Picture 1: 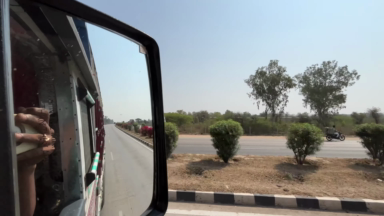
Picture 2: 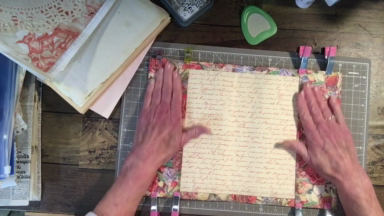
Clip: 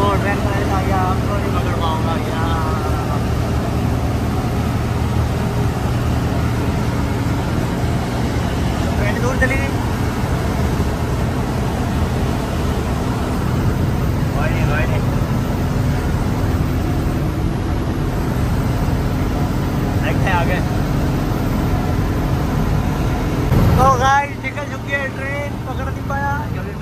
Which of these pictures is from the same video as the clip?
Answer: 1